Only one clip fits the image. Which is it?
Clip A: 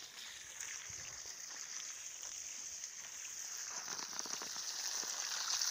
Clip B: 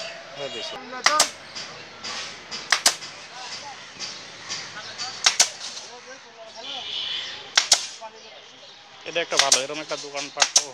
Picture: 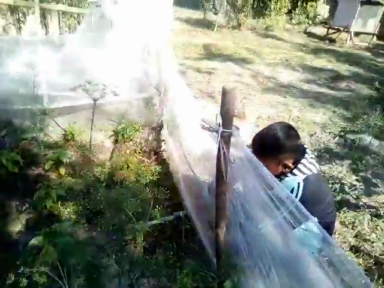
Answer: A